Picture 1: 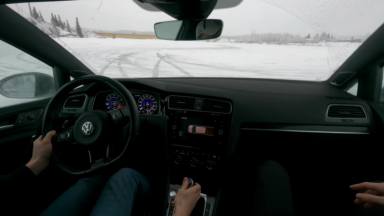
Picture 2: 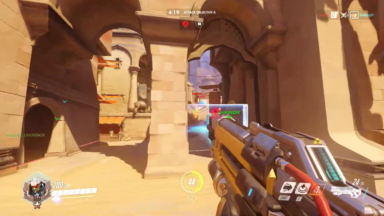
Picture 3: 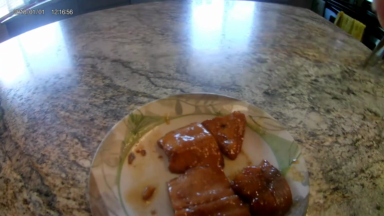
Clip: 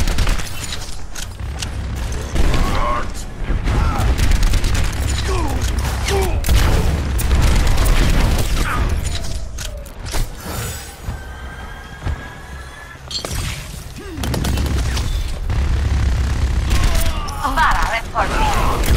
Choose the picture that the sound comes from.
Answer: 2